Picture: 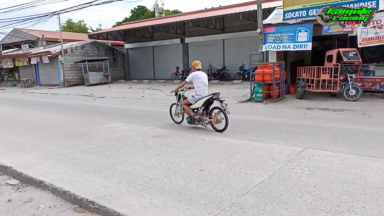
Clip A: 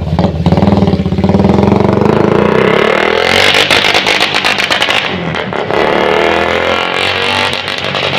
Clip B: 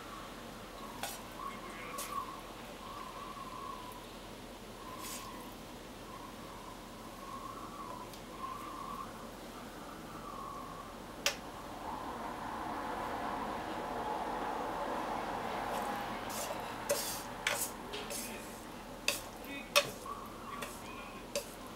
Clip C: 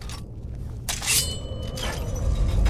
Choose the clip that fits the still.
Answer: A